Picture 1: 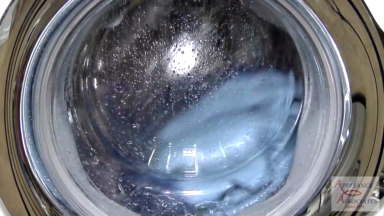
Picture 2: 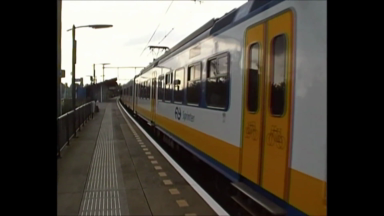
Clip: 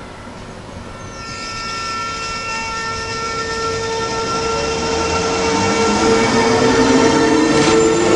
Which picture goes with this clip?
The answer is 2